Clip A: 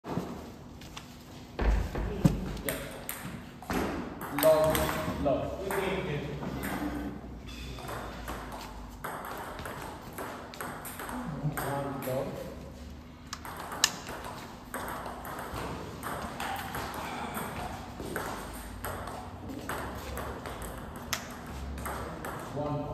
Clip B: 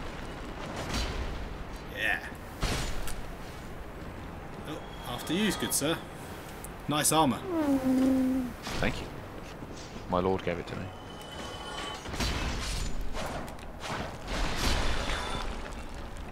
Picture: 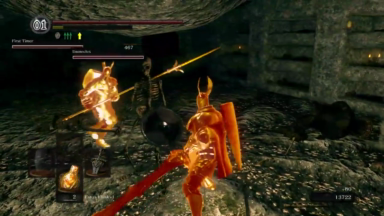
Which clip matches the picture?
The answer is B